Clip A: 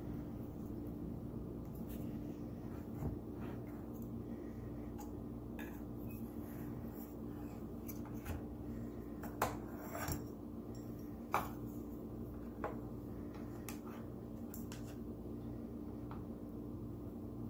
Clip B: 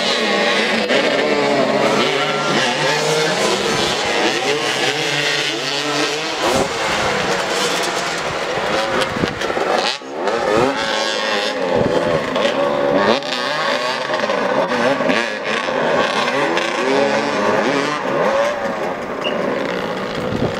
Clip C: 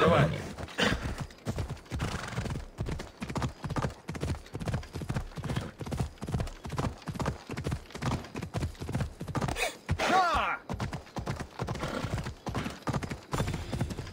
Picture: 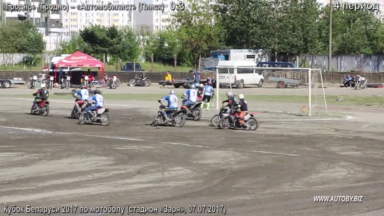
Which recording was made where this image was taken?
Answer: B